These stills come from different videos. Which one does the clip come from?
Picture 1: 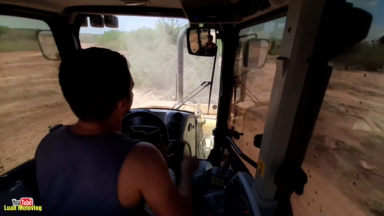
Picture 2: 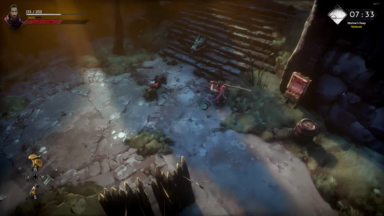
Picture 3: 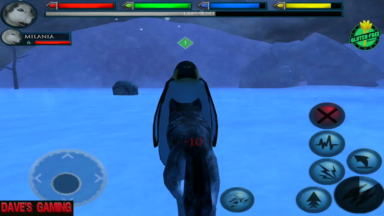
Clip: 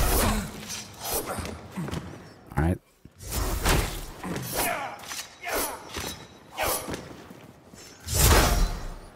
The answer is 2